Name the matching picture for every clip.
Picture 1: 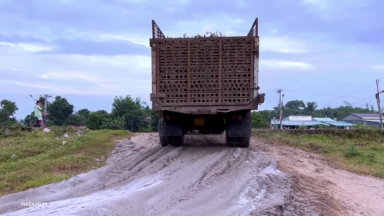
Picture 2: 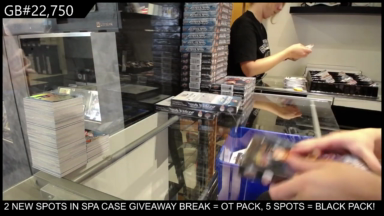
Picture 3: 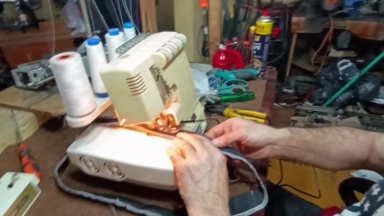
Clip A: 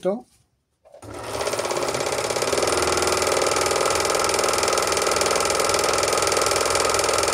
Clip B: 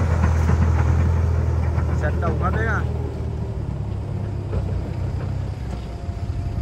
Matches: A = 3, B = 1